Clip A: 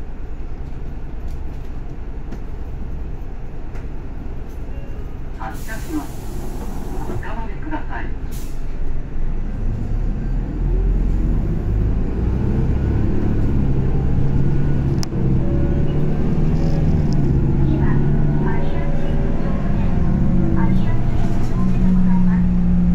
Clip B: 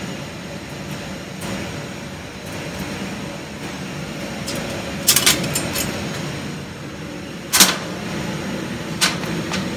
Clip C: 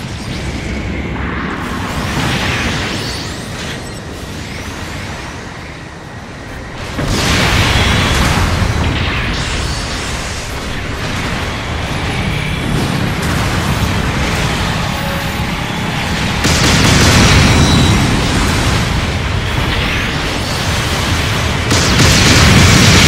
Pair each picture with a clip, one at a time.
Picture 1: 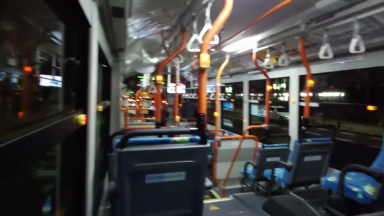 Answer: A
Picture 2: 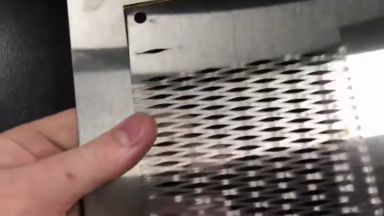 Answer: B